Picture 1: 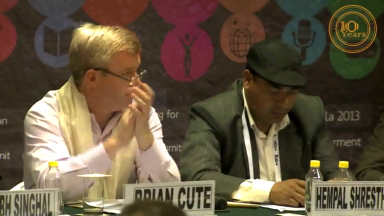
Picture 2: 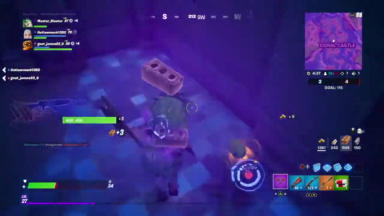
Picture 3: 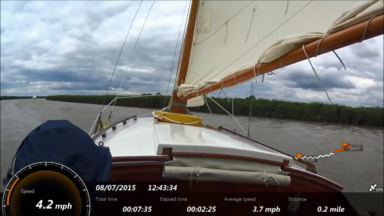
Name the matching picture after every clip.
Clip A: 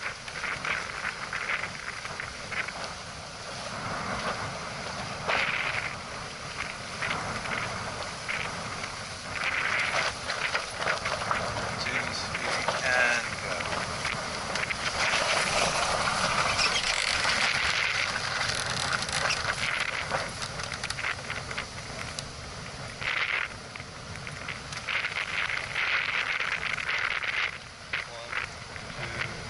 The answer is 3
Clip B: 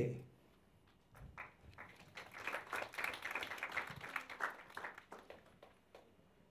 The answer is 1